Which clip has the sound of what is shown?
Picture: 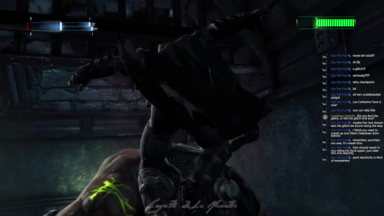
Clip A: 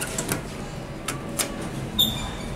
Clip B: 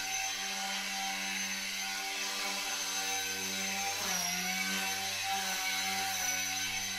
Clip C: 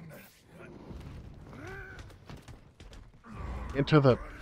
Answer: C